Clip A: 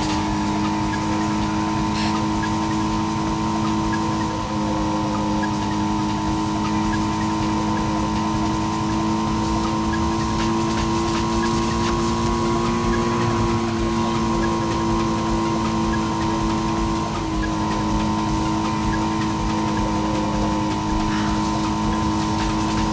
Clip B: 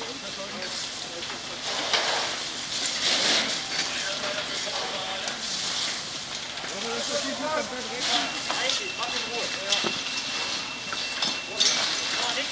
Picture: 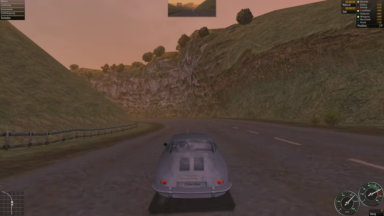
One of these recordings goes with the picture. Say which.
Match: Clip A